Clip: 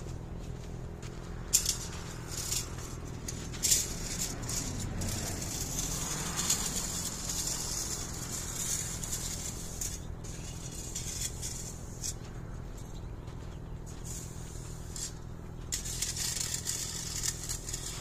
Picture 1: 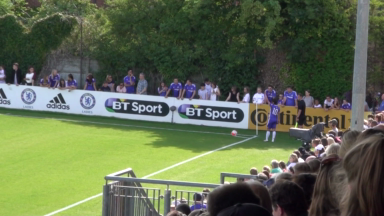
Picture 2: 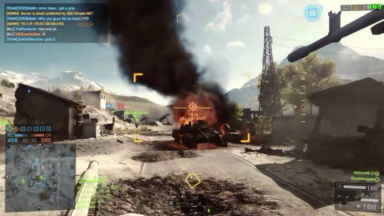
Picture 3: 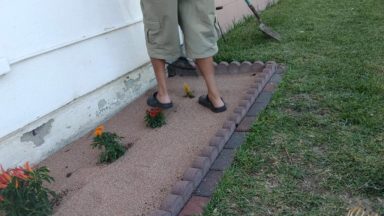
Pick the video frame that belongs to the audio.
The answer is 3